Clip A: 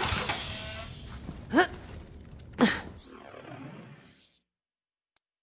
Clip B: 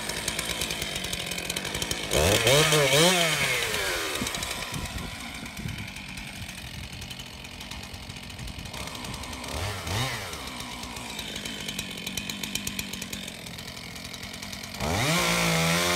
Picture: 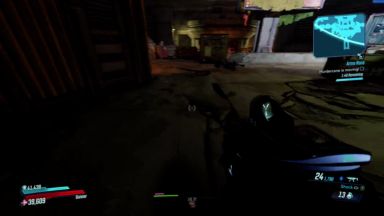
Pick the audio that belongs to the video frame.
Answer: A